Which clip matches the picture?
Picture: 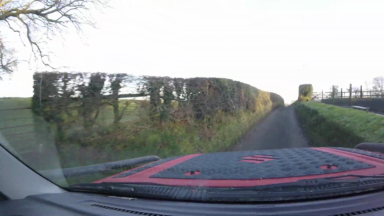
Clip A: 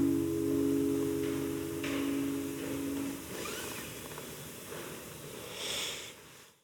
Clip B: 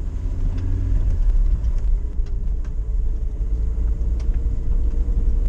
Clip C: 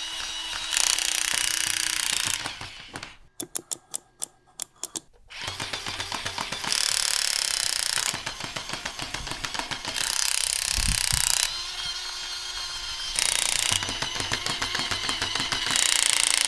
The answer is B